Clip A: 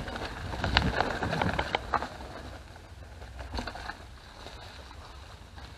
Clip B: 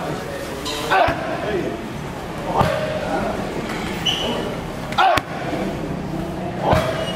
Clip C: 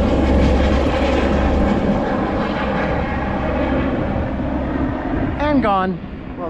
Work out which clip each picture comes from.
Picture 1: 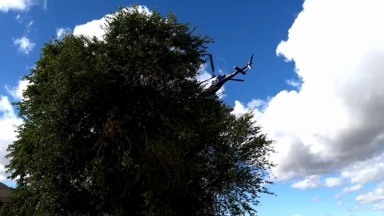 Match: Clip C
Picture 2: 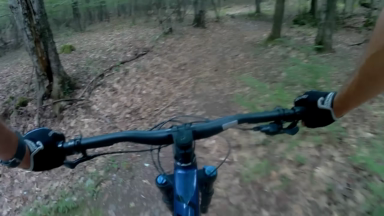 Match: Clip A